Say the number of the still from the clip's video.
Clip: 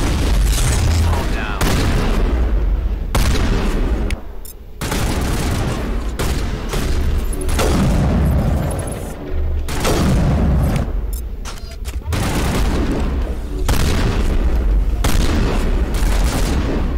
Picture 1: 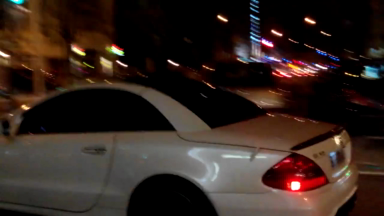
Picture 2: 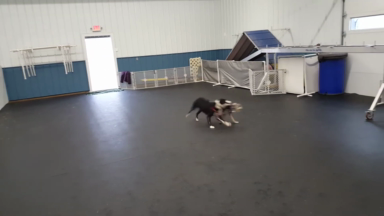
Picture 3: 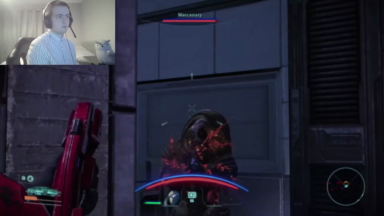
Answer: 3